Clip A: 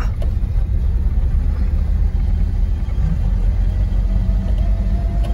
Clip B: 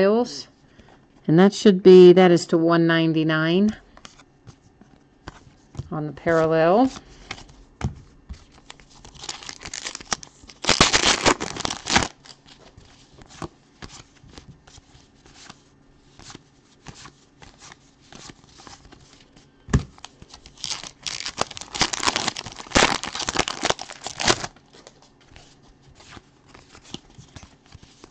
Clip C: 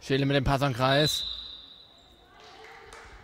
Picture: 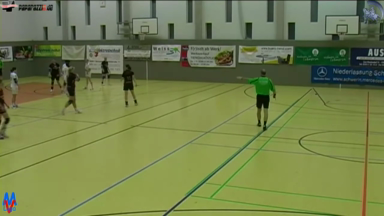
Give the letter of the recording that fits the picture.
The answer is C